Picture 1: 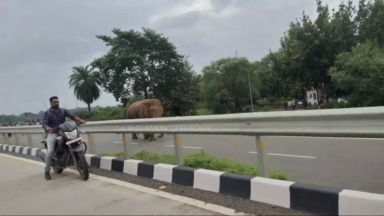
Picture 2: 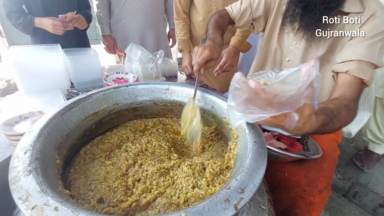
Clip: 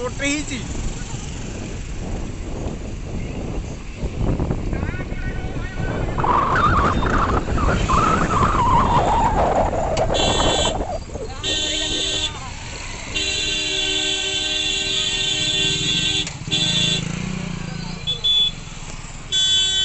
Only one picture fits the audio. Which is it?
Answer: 1